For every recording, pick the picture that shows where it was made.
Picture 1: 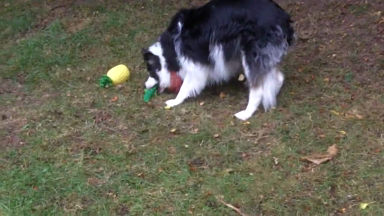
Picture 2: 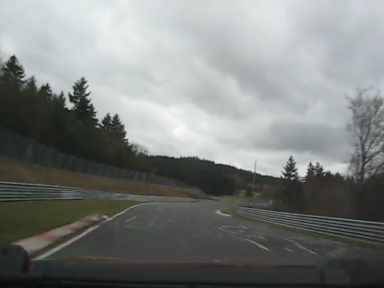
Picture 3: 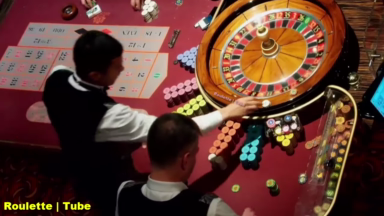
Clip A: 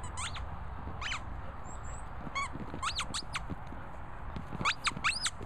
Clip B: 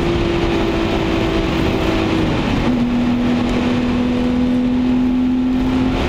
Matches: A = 1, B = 2